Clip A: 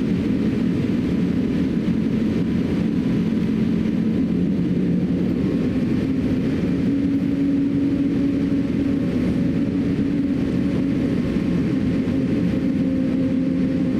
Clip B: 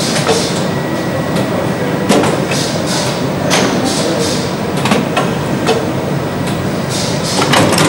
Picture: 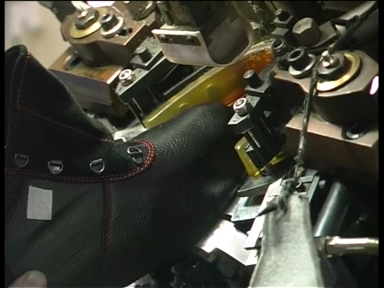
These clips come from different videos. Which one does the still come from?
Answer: B